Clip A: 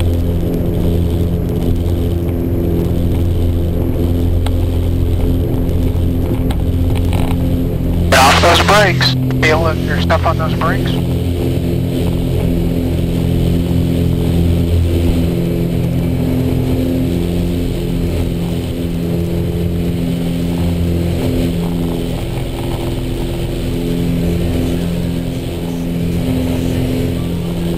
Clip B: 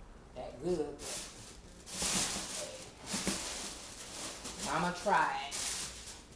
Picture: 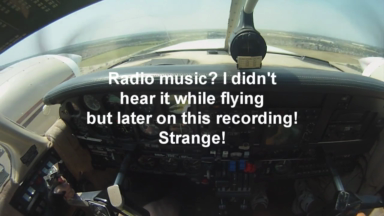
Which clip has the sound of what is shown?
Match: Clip A